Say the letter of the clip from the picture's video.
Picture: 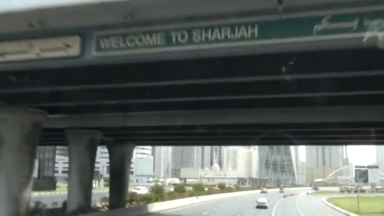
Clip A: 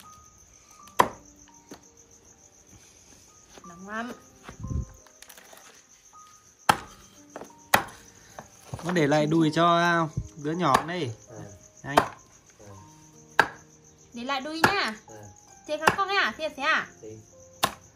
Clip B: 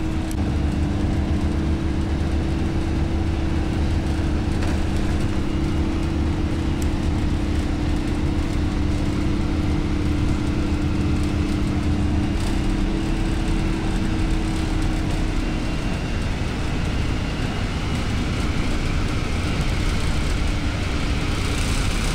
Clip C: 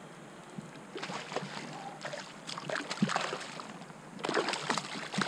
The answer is B